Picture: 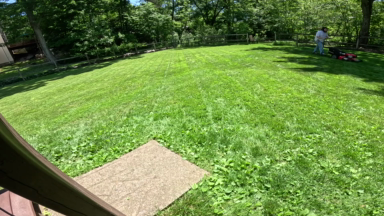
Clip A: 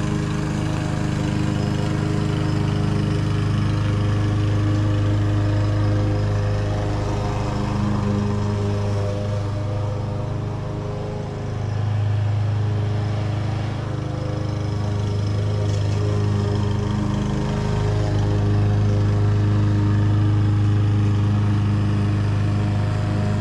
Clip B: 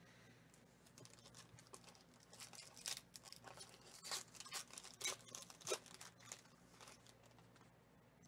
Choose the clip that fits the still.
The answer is A